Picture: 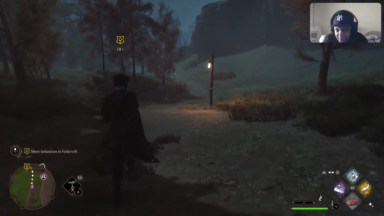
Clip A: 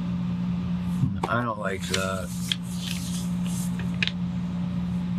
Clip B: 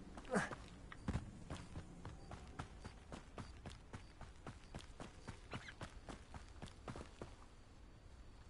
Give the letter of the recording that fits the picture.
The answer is B